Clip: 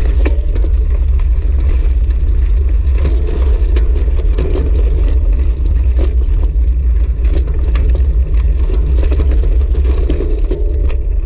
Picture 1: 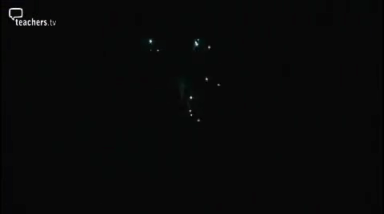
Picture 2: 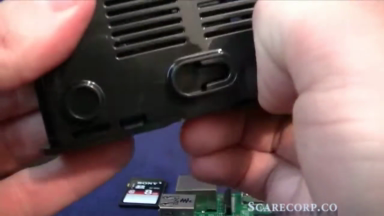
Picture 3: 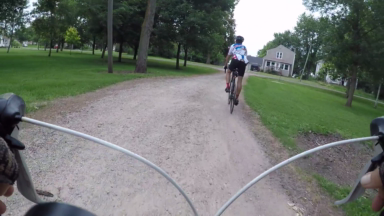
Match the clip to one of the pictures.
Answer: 3